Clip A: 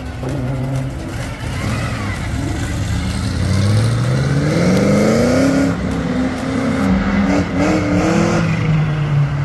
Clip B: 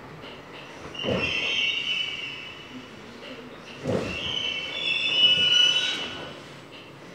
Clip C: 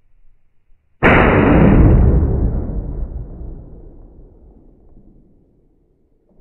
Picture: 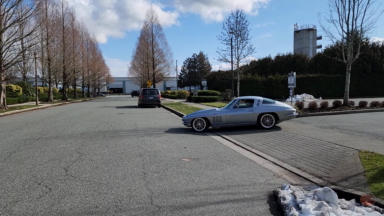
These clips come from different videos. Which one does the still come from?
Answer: A